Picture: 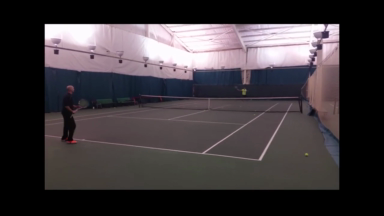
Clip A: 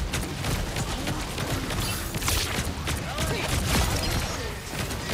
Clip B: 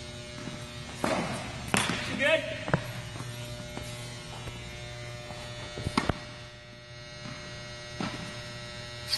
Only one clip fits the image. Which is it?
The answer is B